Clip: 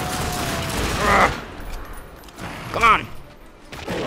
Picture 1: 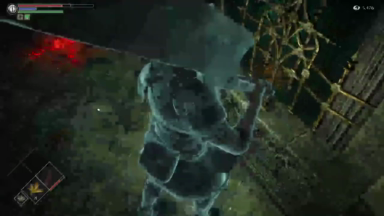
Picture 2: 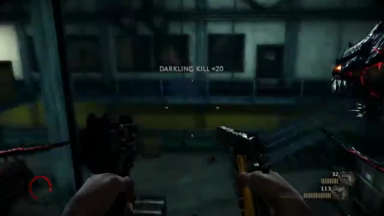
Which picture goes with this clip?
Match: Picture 2